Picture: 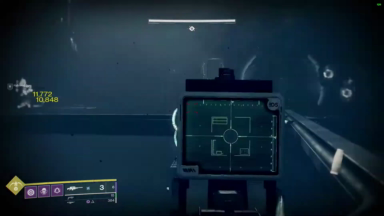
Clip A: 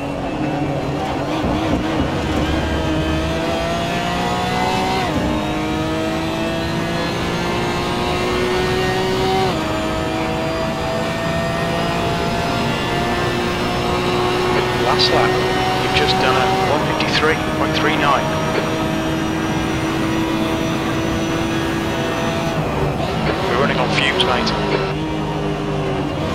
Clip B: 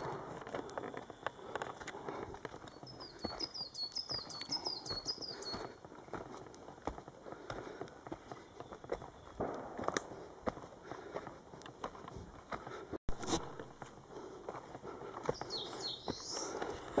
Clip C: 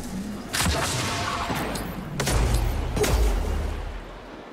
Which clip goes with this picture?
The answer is C